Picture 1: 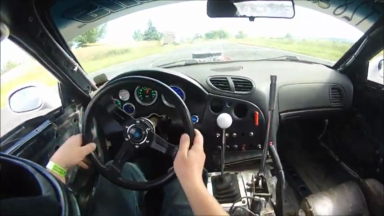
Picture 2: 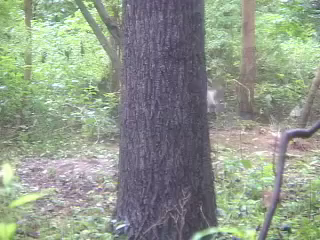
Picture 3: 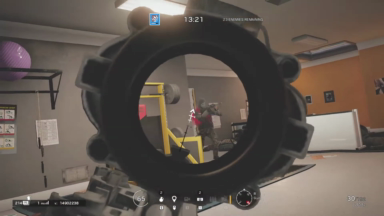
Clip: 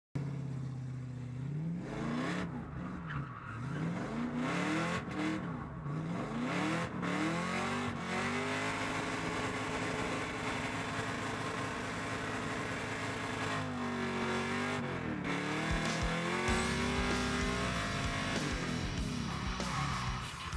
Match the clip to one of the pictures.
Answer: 1